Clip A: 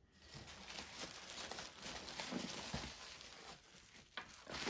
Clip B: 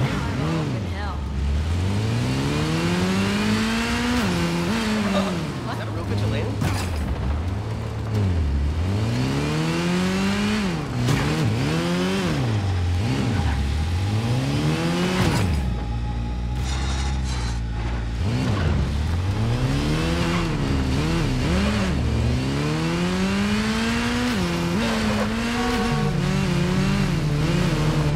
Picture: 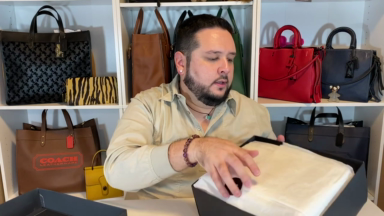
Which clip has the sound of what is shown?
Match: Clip A